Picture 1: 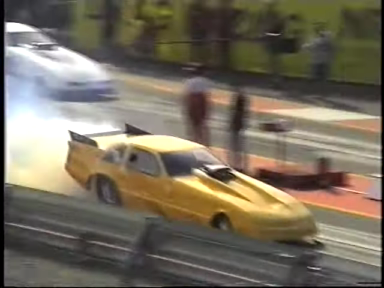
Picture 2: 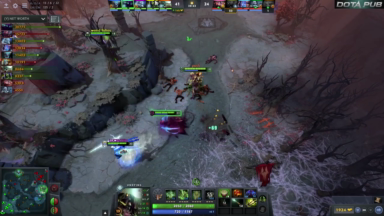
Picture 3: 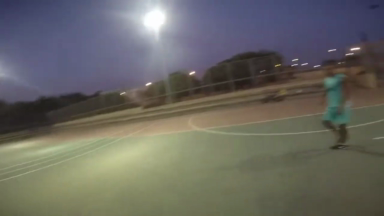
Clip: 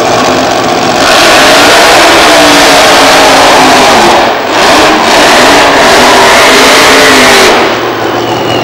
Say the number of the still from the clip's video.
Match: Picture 1